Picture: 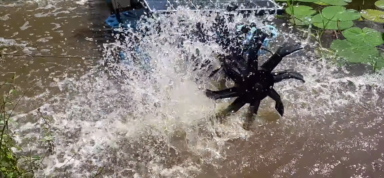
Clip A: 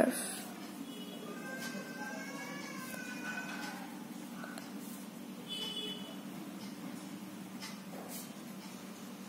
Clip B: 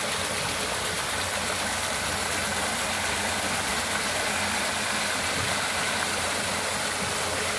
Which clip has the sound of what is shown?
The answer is B